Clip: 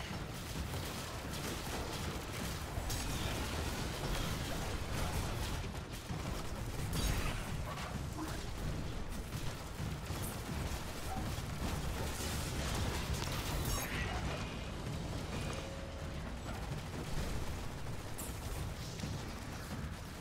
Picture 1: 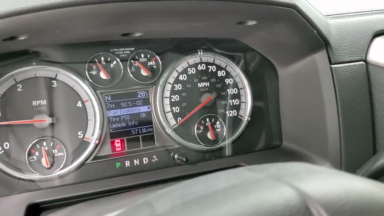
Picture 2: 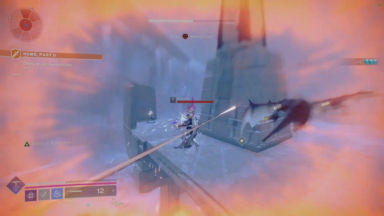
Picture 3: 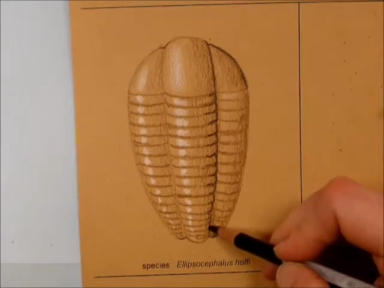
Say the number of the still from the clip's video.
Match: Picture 2